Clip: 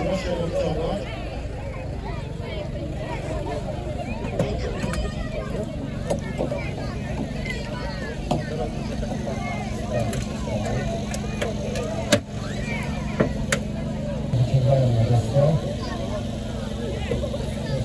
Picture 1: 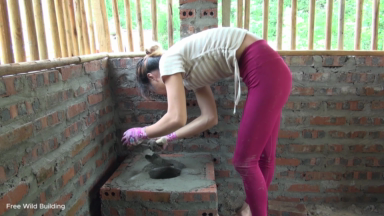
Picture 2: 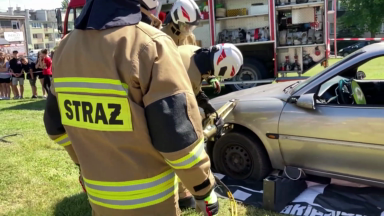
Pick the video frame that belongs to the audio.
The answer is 2